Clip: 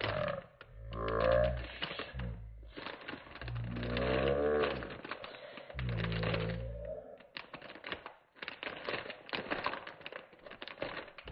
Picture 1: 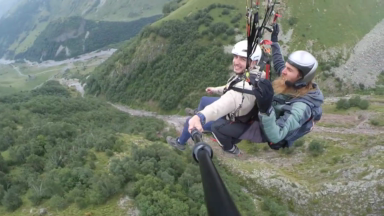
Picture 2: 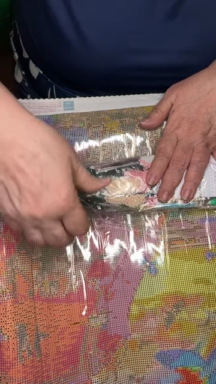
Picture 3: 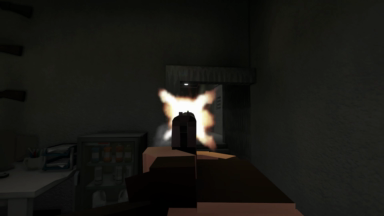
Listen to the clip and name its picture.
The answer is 2